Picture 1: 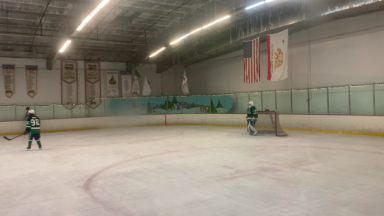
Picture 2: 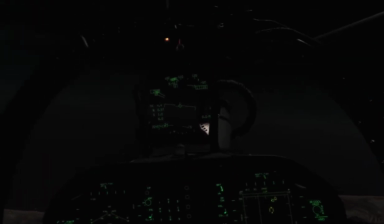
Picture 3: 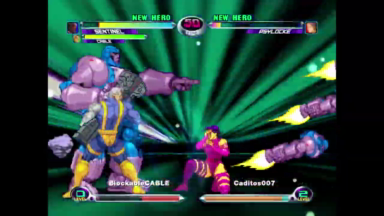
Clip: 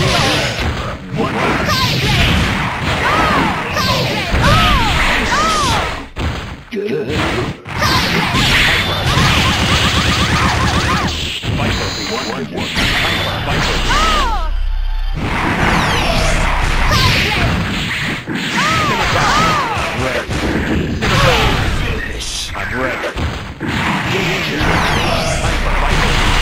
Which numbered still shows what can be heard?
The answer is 3